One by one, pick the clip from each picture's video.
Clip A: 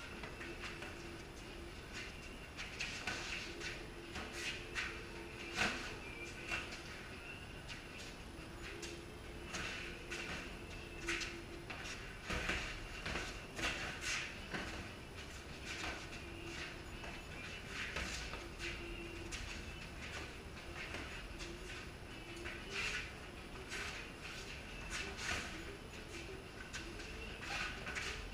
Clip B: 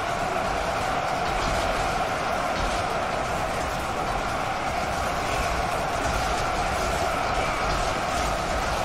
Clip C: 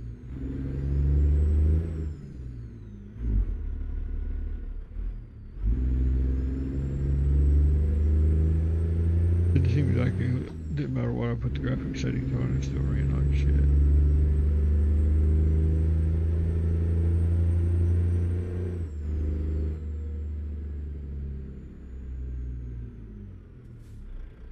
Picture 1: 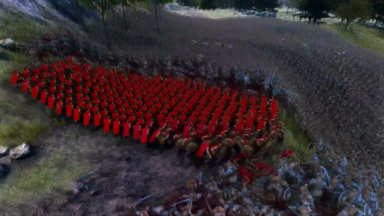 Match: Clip B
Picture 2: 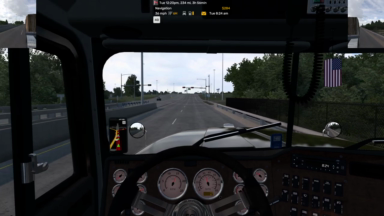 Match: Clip C